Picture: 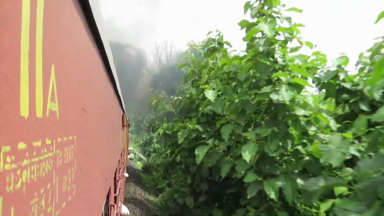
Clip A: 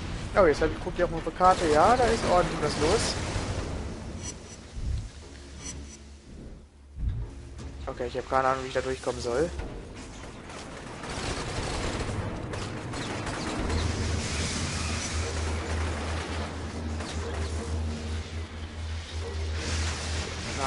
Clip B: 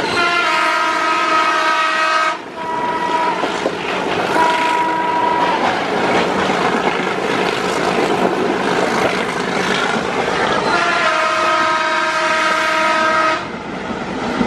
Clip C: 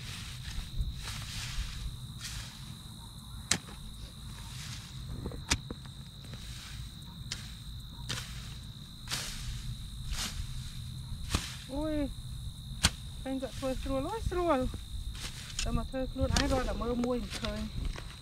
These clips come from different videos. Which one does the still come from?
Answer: B